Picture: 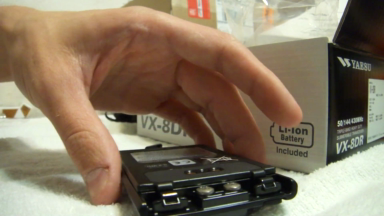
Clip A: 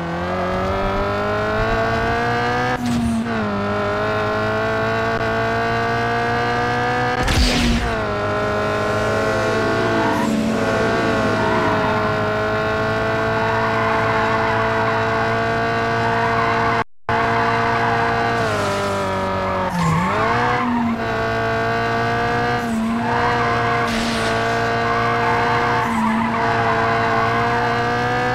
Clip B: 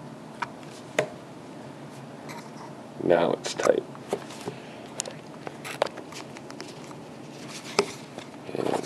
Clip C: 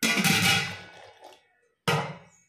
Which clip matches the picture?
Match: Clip B